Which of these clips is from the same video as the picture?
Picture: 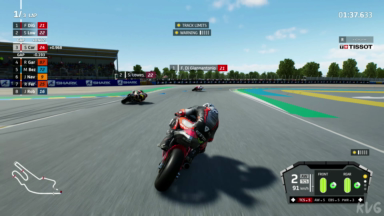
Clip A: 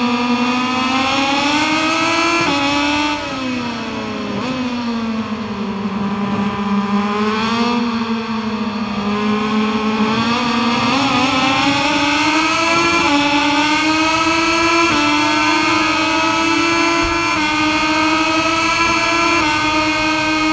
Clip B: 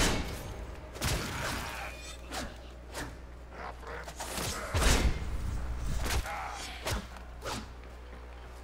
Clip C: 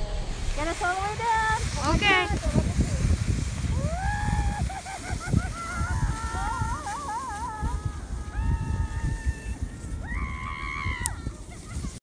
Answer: A